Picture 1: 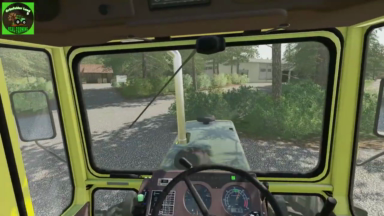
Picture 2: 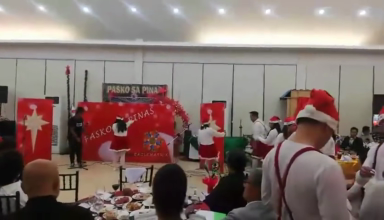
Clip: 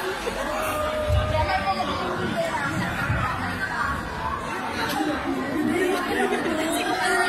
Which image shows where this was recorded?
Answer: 2